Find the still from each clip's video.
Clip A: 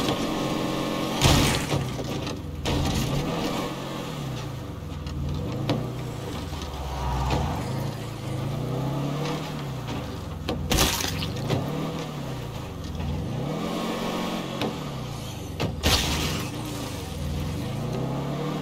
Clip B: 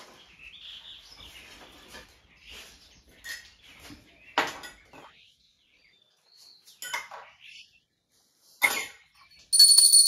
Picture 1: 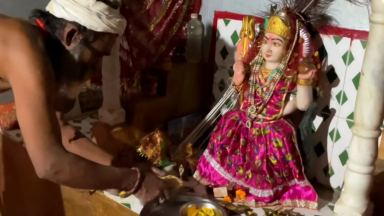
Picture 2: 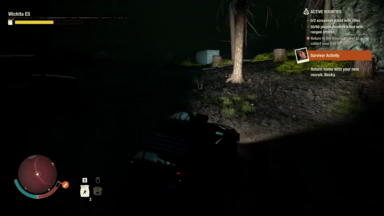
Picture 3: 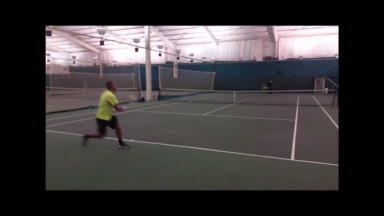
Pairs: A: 2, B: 1